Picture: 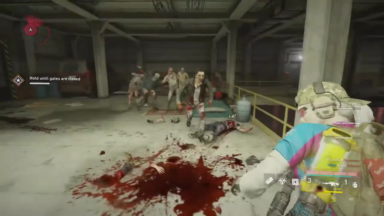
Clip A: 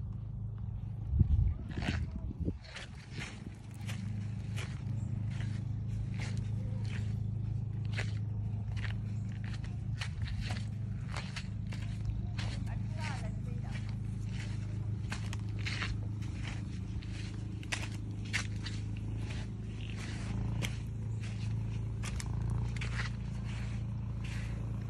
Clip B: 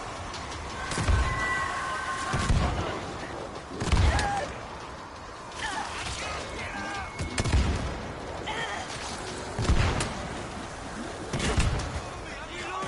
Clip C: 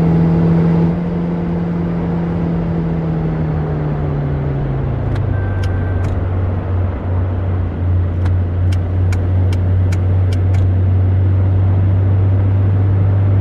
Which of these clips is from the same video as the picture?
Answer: B